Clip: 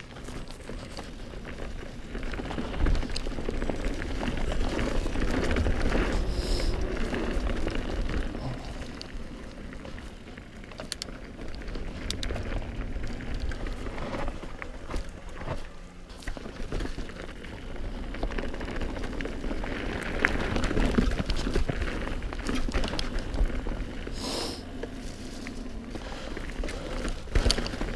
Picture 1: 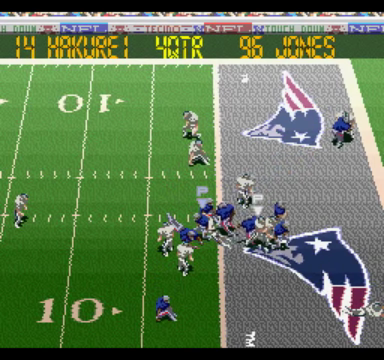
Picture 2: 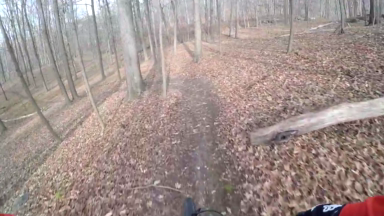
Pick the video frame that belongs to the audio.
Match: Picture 2